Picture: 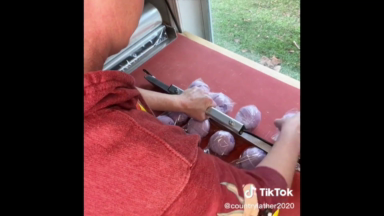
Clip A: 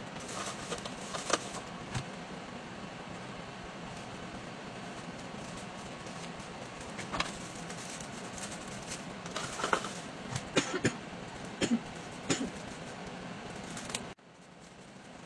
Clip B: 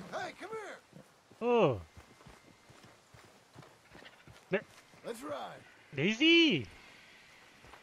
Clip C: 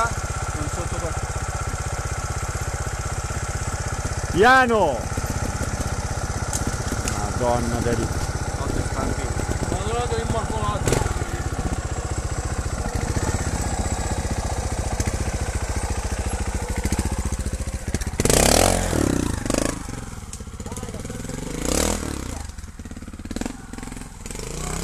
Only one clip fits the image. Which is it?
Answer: A